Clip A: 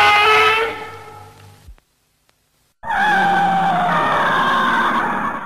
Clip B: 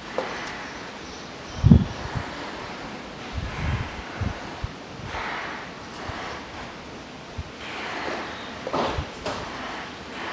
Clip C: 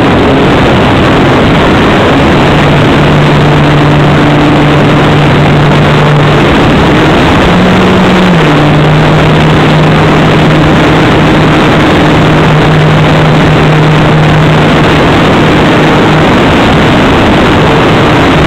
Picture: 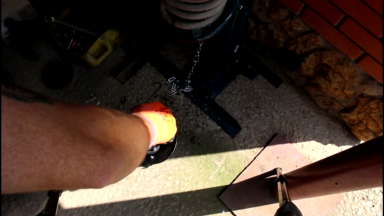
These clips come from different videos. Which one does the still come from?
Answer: B